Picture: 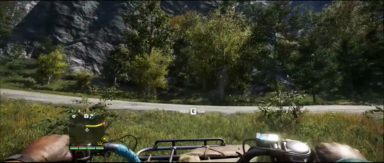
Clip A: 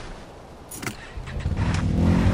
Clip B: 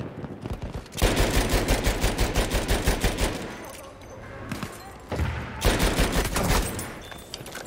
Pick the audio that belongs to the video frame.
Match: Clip A